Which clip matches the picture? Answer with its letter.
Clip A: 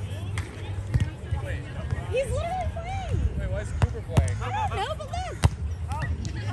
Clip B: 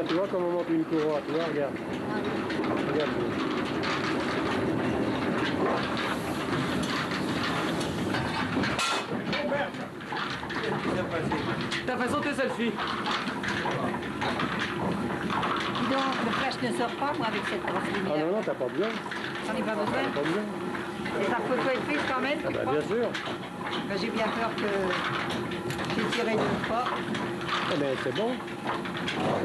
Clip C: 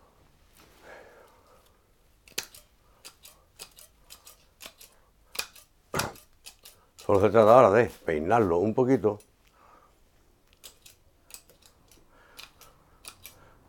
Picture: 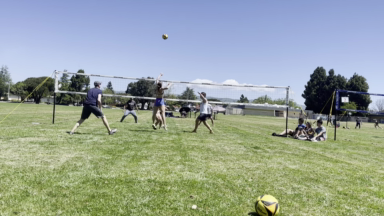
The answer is A